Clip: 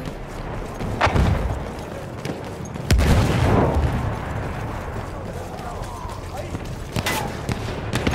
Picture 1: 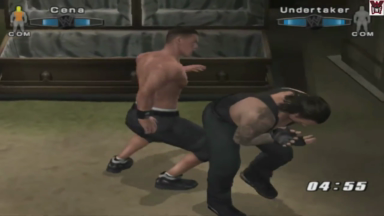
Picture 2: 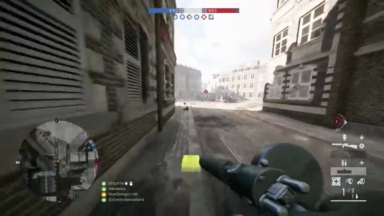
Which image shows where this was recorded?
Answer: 2